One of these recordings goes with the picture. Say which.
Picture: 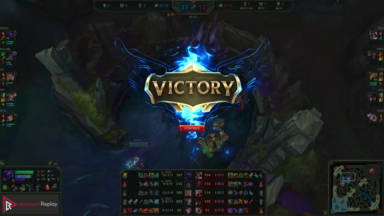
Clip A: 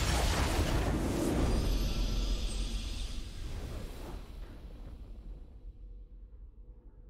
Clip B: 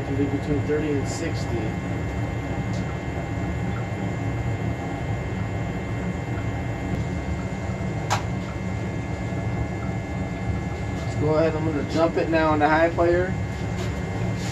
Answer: A